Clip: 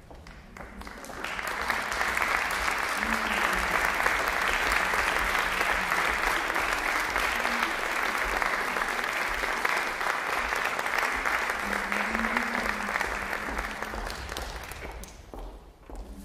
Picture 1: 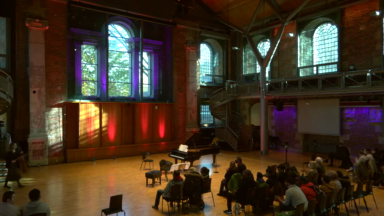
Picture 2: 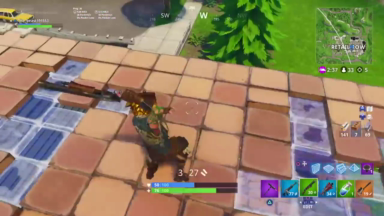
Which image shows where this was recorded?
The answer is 1